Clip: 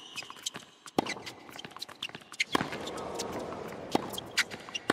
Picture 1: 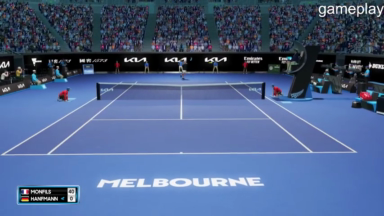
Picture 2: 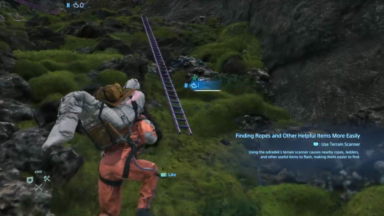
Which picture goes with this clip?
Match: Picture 1